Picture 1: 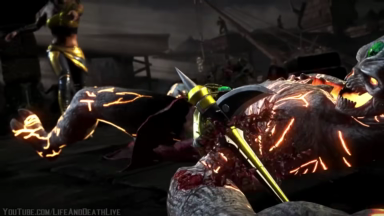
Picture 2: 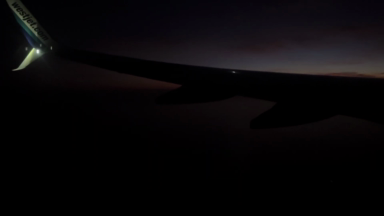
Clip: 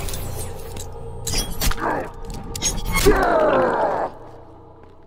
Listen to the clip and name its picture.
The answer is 1